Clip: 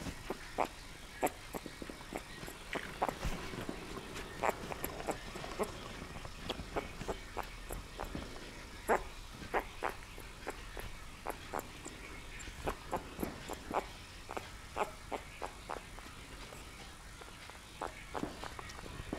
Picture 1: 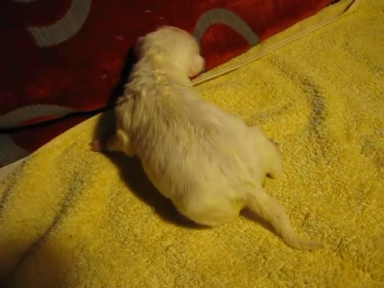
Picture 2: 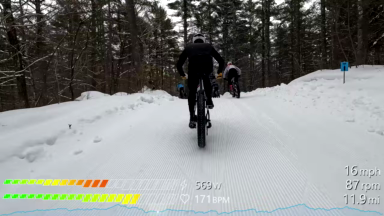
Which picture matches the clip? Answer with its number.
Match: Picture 1